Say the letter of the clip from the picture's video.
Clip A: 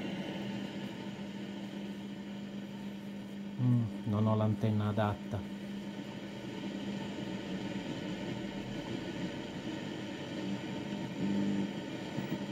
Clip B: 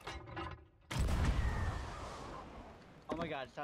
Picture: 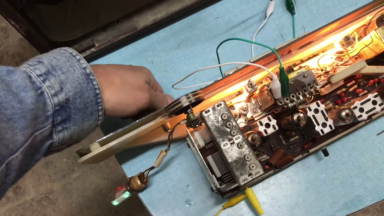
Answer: A